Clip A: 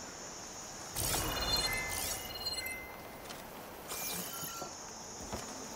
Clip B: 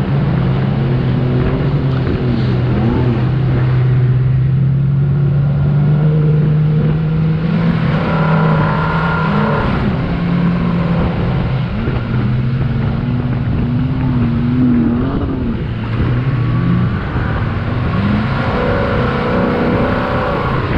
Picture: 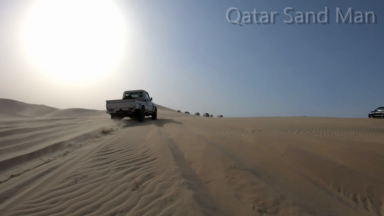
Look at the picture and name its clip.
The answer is B